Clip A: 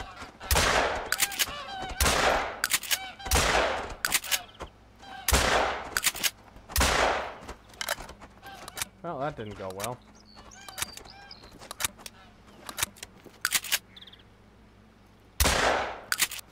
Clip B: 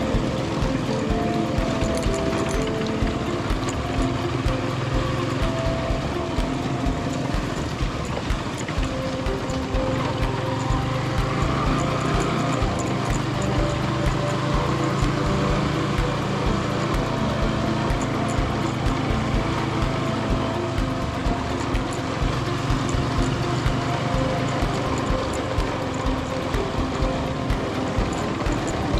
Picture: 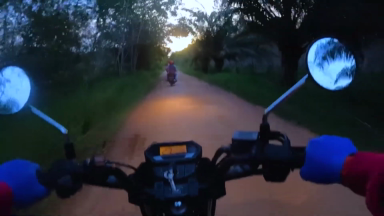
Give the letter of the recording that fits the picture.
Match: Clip B